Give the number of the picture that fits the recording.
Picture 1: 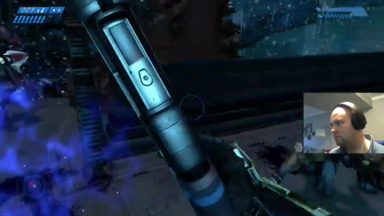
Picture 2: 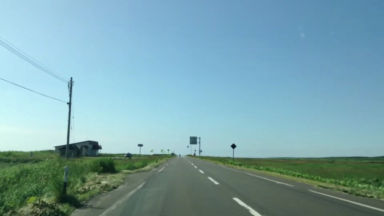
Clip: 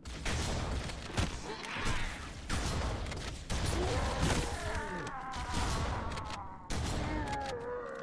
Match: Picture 1